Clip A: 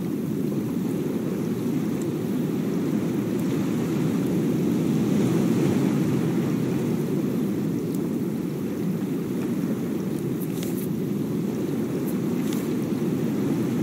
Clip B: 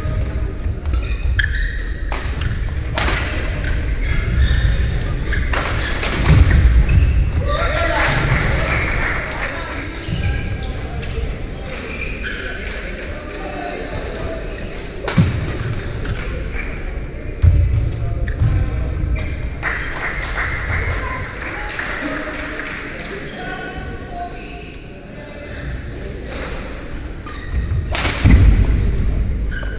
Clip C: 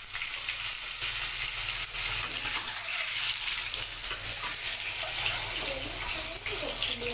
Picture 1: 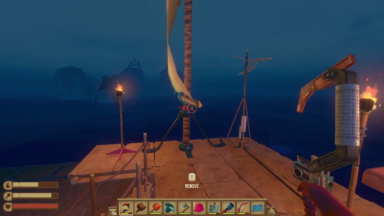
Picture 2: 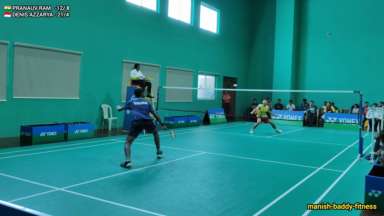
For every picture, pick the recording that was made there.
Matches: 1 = A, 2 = B